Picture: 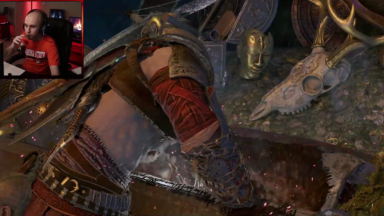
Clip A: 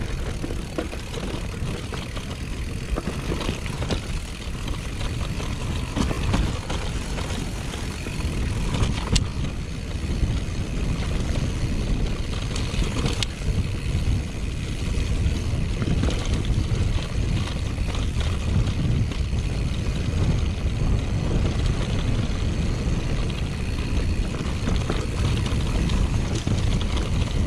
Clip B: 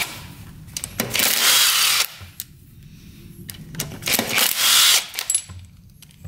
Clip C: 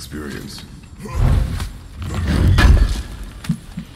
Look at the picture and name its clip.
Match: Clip C